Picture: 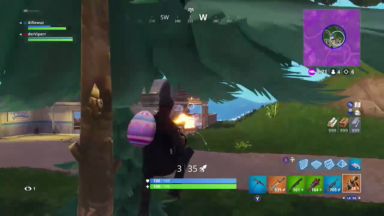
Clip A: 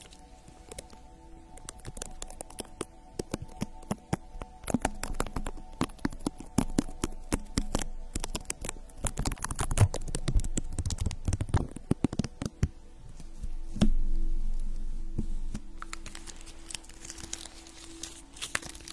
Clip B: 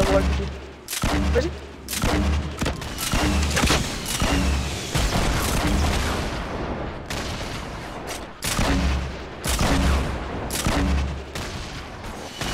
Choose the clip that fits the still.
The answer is B